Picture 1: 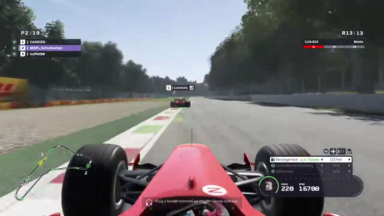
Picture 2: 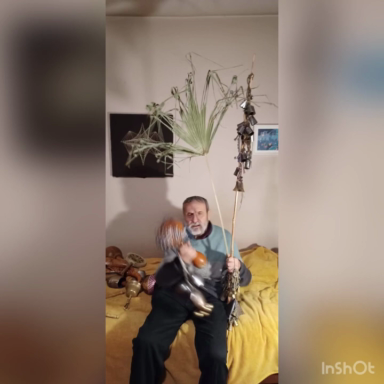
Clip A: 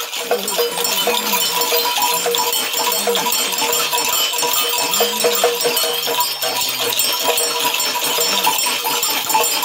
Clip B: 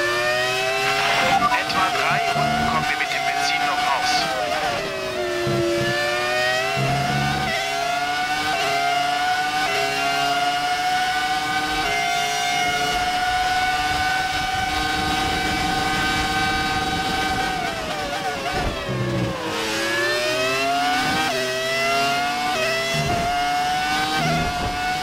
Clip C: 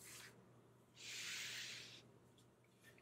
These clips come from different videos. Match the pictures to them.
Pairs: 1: B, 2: A